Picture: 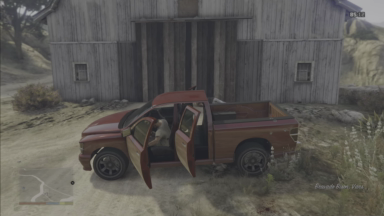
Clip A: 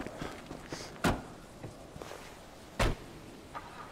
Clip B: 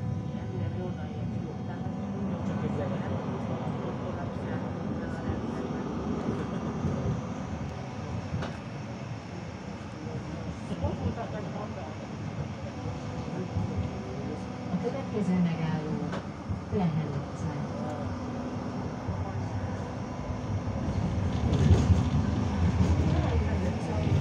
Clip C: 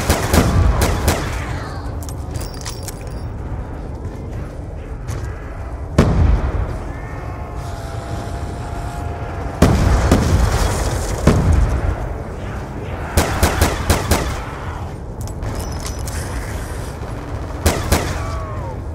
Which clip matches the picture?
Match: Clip A